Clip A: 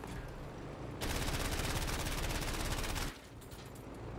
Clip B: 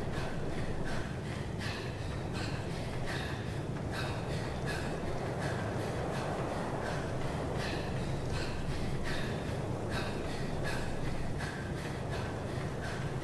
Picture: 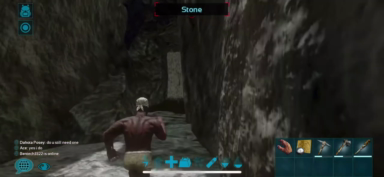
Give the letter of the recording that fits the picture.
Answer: B